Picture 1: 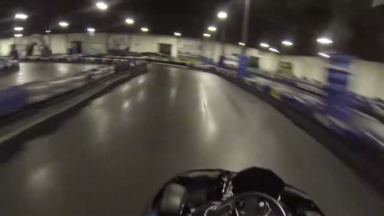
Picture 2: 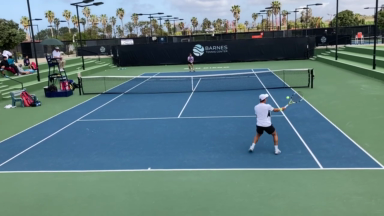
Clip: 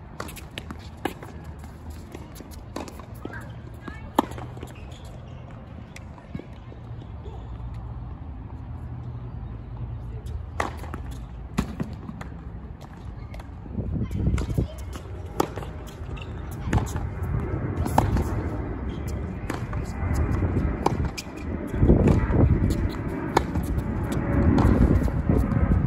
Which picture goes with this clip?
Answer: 2